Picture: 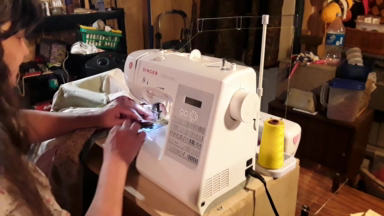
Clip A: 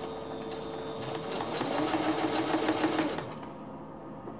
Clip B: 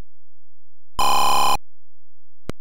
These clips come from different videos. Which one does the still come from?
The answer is A